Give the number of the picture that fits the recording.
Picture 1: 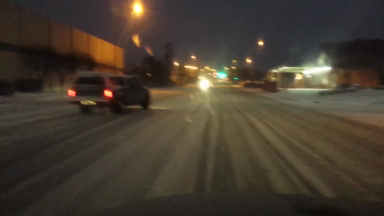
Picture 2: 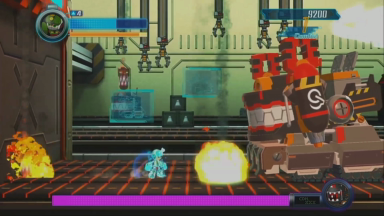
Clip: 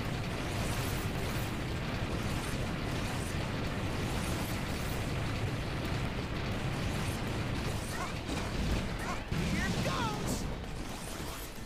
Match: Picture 2